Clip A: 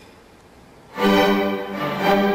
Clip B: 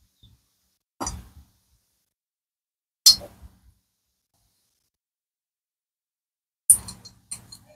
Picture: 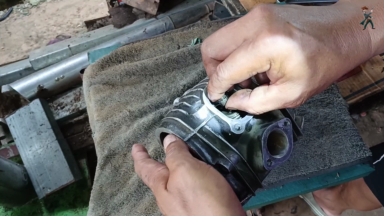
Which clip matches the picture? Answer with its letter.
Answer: B